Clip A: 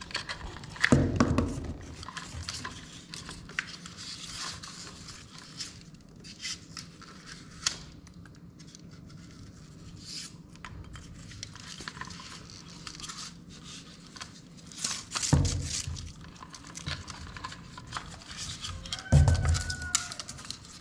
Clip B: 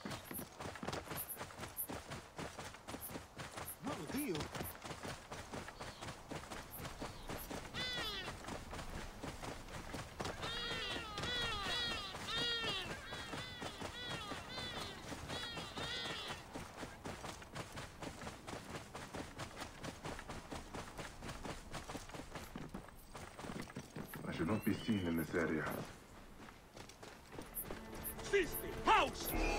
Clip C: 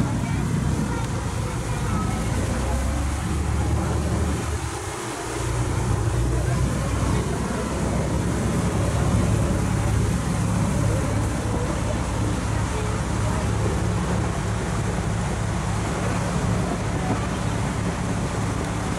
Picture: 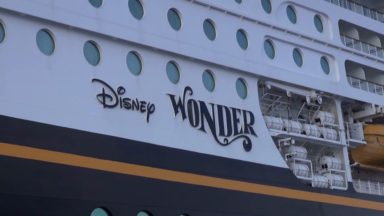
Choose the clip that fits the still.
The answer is C